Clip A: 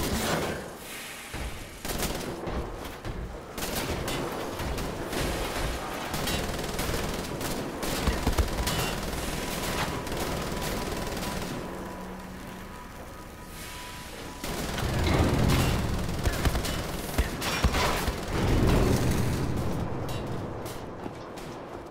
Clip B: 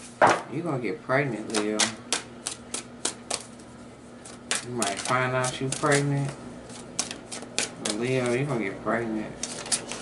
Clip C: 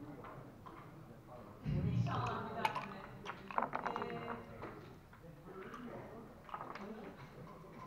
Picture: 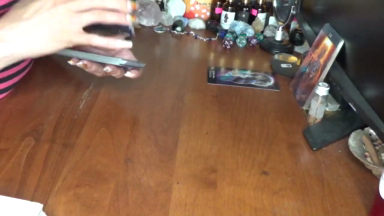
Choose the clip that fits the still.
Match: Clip B